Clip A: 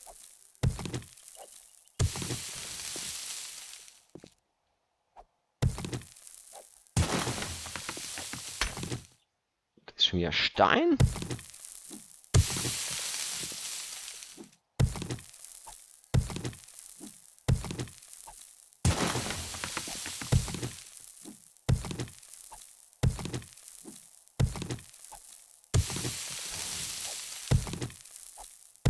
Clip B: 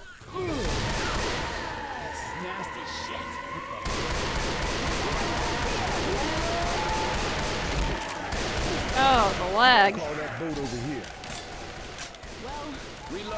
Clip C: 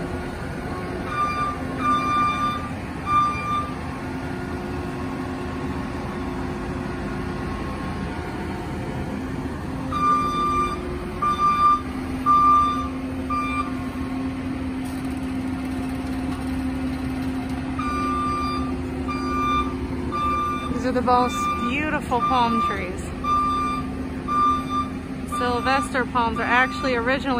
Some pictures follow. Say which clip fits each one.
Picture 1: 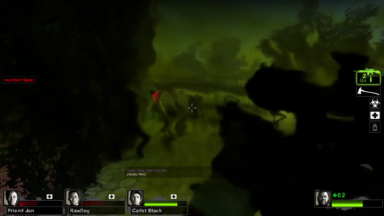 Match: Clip B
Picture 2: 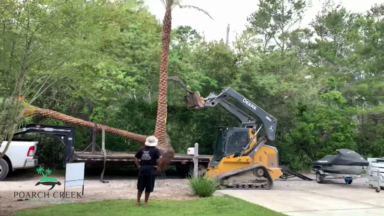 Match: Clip C